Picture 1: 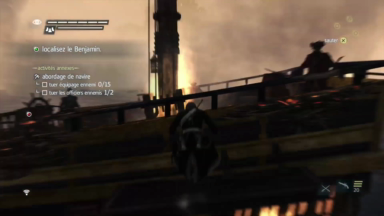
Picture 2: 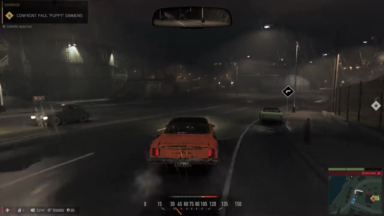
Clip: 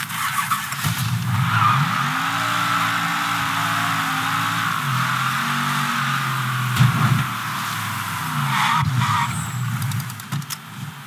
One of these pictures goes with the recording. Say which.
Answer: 2